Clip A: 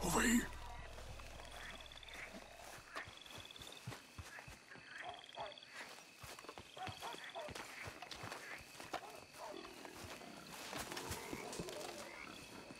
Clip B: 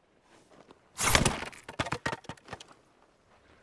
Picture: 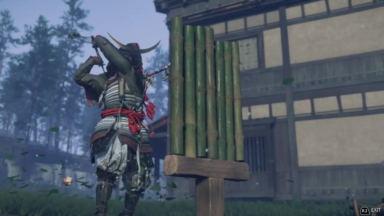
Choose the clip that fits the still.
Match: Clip B